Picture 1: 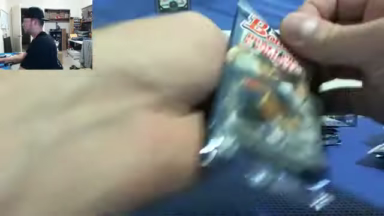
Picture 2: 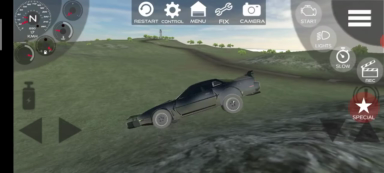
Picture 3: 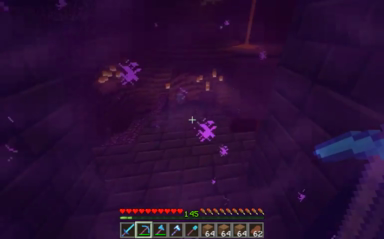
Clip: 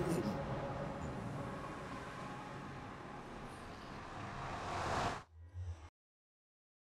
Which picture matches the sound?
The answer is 3